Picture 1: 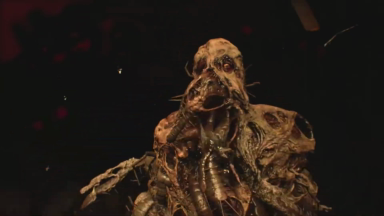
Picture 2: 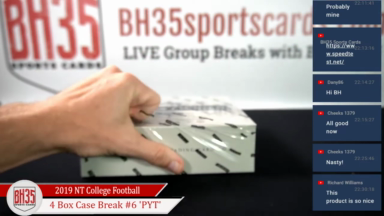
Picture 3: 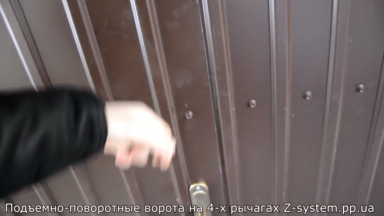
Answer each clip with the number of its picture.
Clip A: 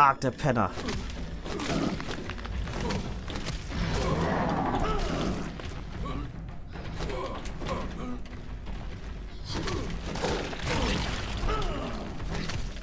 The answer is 1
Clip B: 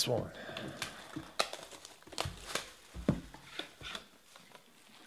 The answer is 2